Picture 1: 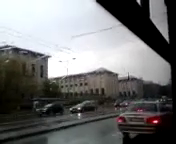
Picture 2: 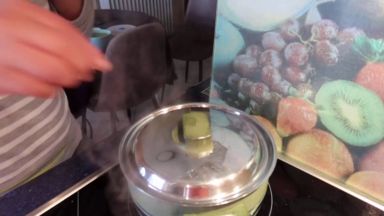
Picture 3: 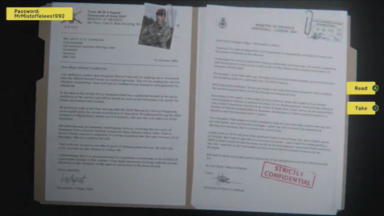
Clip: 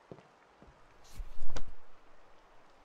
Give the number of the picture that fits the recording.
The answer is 3